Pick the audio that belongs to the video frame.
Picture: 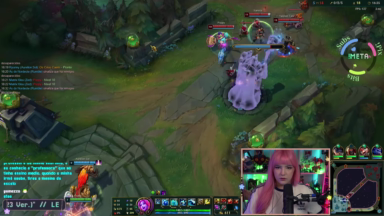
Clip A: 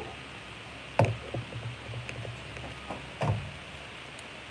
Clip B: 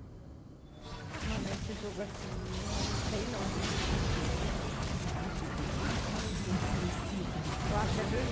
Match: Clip B